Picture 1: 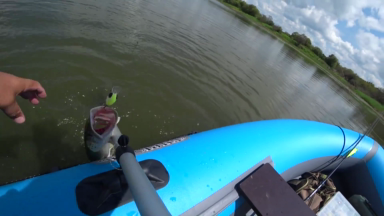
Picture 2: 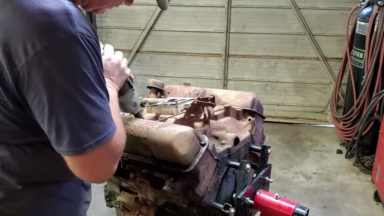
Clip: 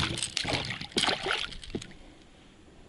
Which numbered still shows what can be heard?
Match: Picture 1